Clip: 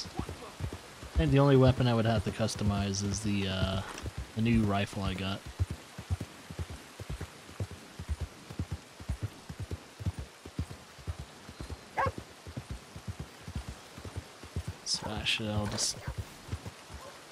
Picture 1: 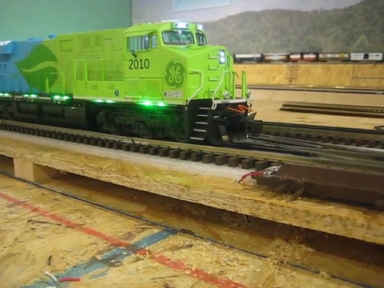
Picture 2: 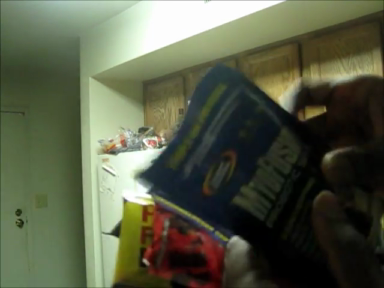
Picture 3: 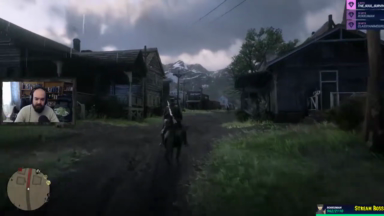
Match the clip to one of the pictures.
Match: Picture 3